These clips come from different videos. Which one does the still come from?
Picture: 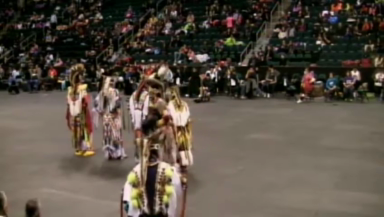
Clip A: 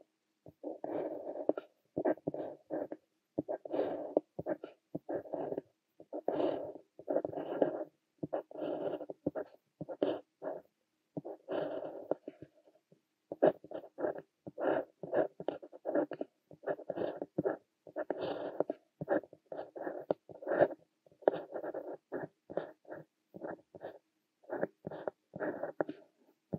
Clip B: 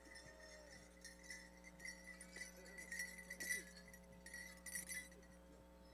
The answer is B